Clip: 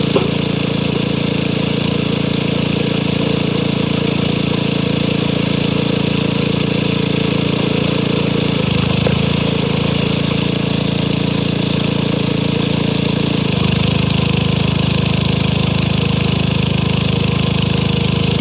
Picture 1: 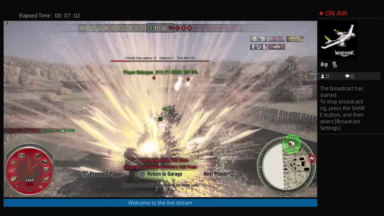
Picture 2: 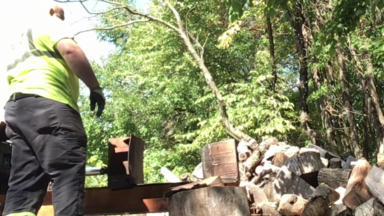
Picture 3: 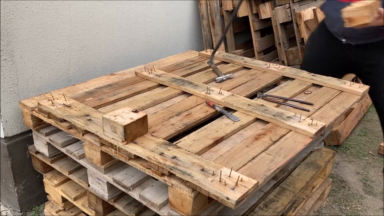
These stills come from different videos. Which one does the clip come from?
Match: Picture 2